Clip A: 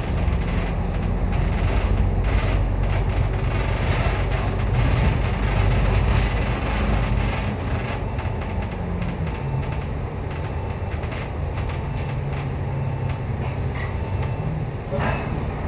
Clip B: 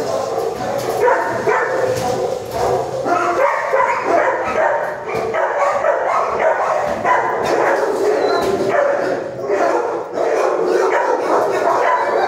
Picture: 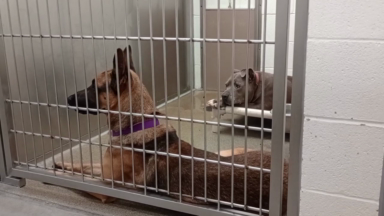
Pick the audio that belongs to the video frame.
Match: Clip B